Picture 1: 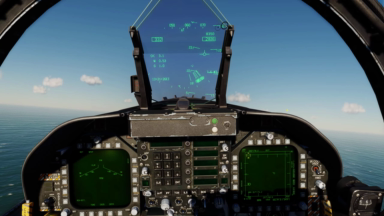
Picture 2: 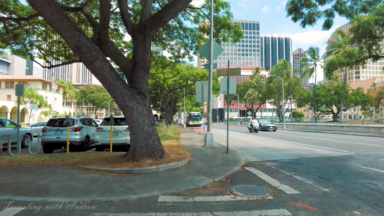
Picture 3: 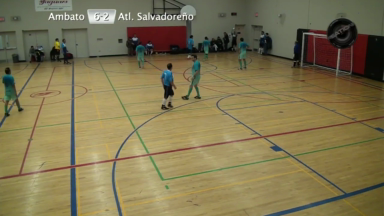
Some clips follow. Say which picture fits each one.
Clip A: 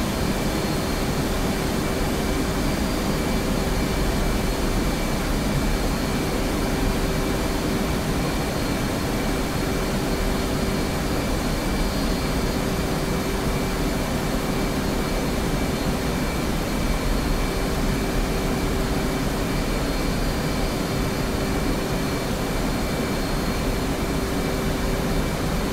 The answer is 1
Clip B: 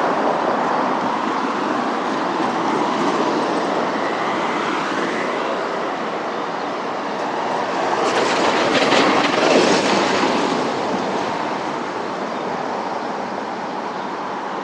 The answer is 2